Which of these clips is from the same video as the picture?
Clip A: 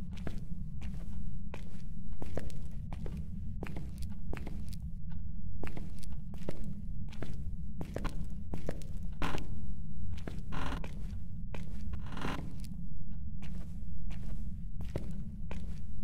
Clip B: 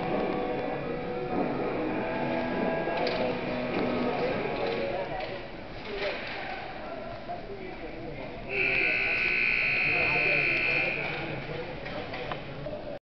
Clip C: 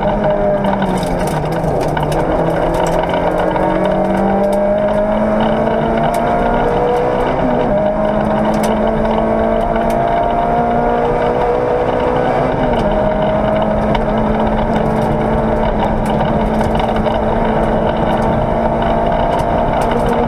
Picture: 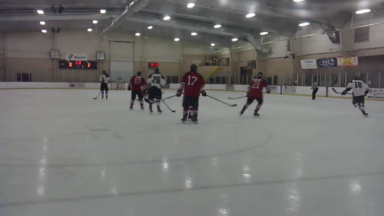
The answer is B